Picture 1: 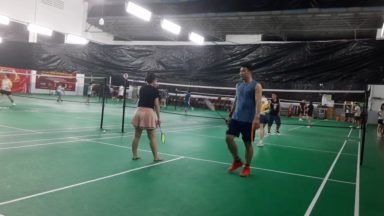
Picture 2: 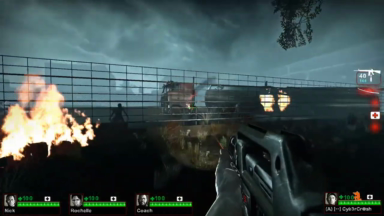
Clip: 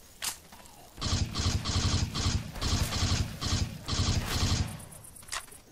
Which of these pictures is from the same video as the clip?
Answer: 2